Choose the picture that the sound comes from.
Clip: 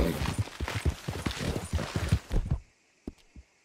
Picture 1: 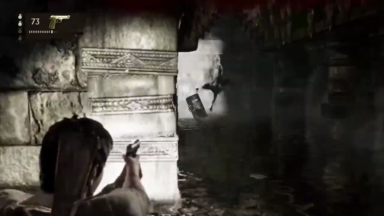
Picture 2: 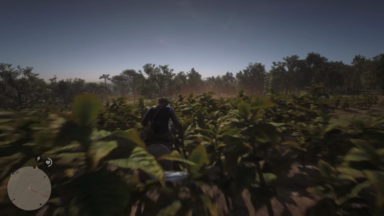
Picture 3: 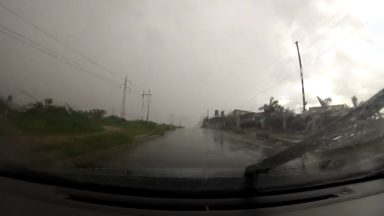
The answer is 2